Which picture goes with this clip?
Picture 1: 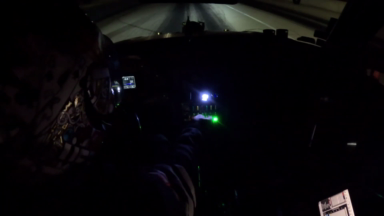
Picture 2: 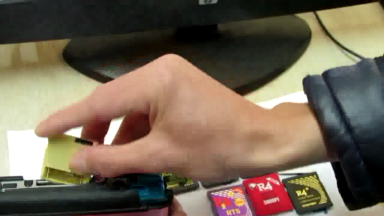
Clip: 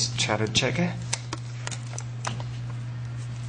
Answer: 2